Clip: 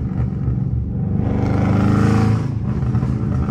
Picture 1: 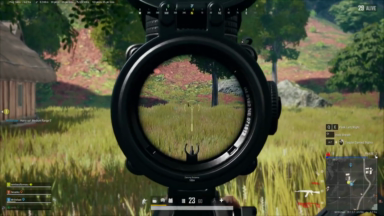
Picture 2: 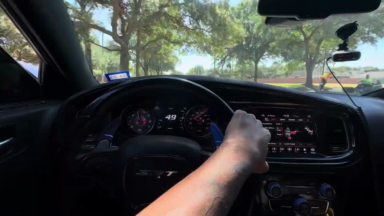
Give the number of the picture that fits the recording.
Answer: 2